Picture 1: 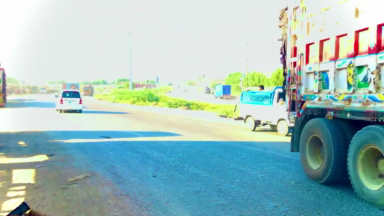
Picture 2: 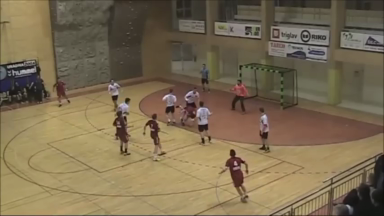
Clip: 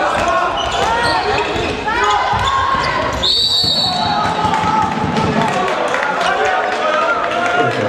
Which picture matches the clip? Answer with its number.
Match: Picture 2